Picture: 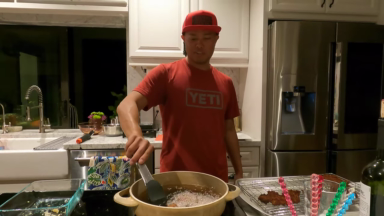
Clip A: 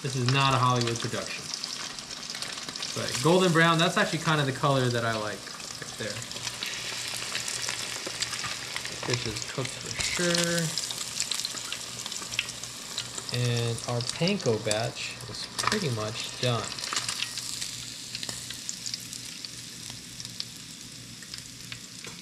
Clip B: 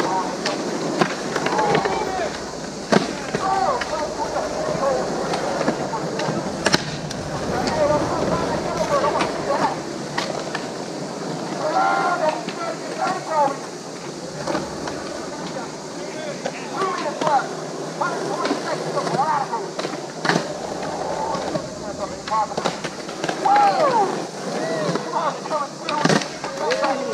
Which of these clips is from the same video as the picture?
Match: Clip A